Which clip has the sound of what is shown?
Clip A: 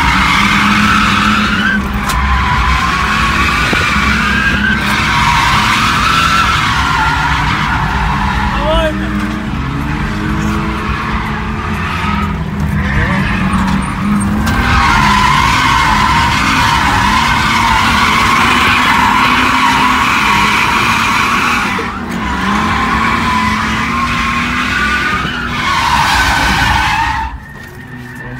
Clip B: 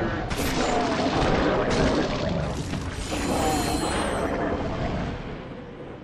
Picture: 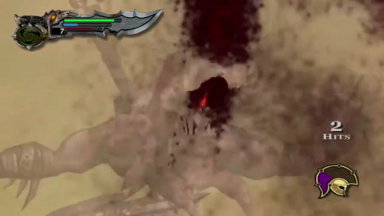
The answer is B